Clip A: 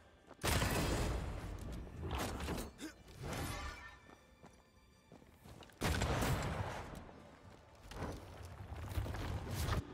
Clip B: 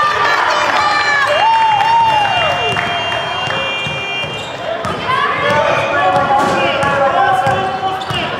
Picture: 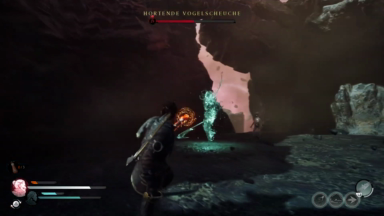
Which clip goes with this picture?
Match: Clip A